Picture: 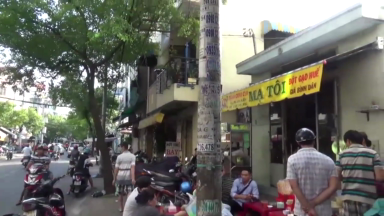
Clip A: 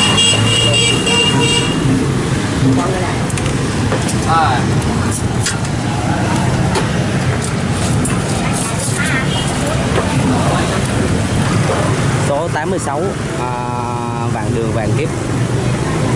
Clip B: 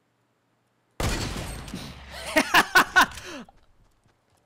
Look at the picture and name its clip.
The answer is A